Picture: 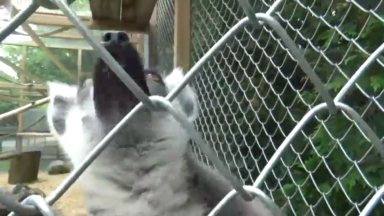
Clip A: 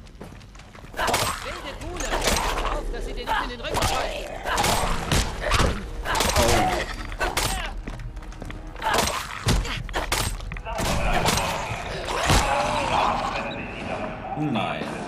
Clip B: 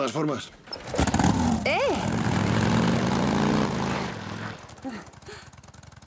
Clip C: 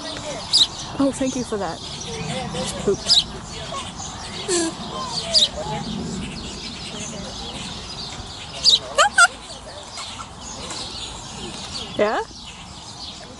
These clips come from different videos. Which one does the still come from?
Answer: C